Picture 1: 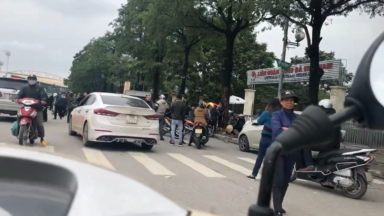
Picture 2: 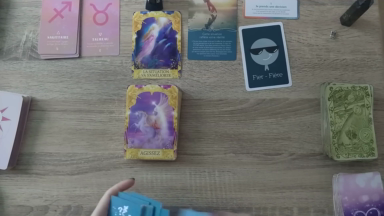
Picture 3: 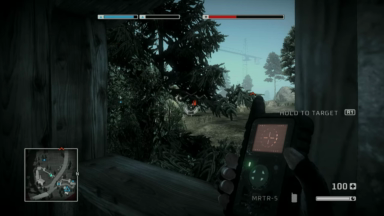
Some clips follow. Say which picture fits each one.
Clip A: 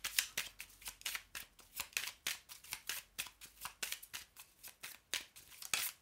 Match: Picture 2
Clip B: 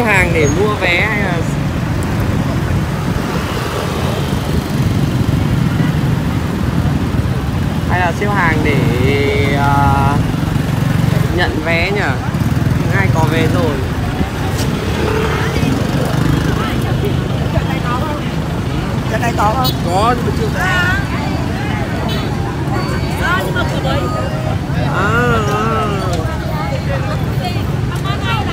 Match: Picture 1